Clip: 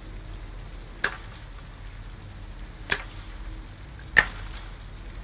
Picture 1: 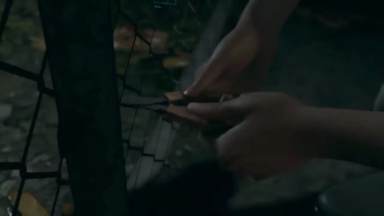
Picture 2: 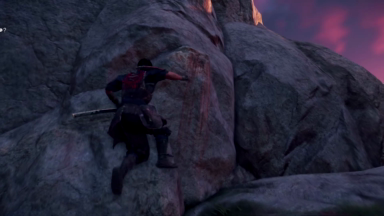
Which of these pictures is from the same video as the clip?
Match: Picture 1